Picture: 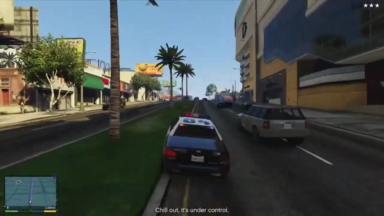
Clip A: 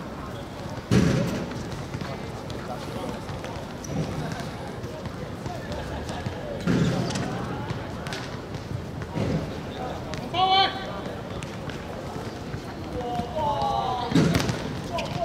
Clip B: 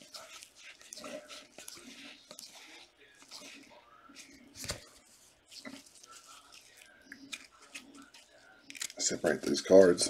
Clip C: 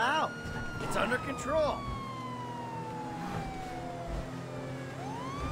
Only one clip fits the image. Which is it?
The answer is C